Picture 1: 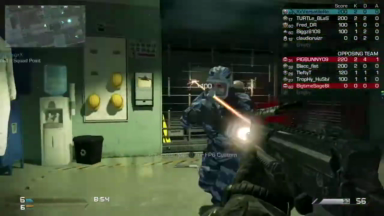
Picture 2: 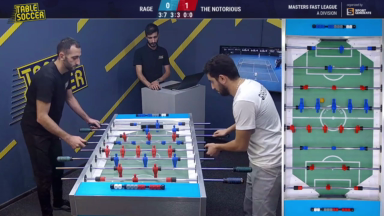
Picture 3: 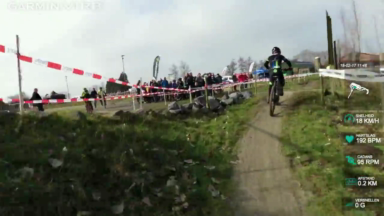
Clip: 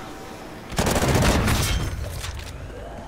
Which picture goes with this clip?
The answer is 1